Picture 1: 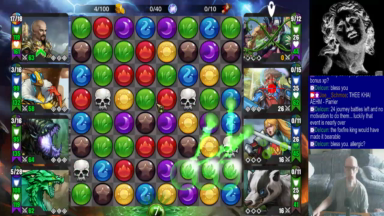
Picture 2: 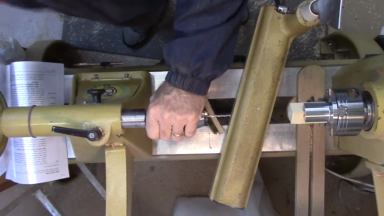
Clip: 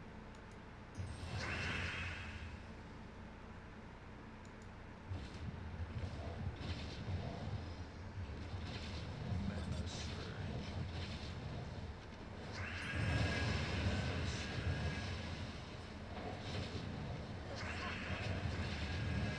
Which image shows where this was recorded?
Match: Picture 1